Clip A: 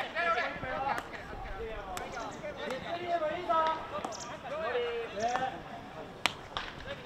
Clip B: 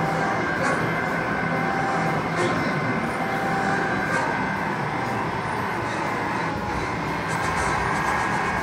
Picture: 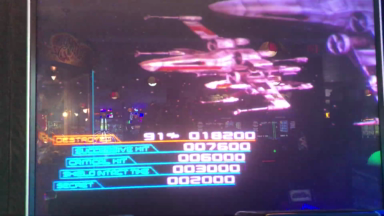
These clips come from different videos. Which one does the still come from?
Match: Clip B